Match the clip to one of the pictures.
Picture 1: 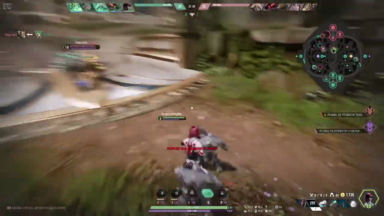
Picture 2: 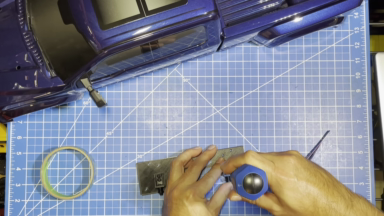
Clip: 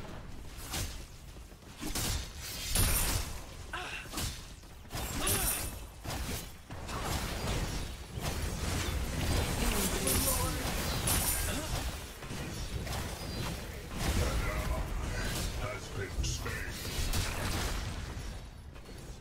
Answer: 1